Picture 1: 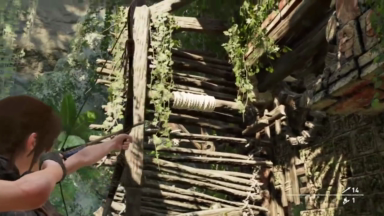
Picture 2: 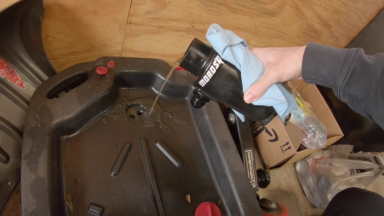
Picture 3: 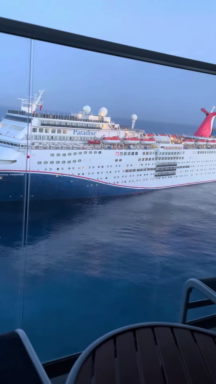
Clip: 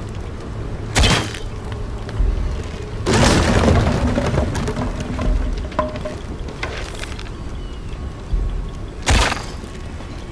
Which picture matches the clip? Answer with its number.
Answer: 1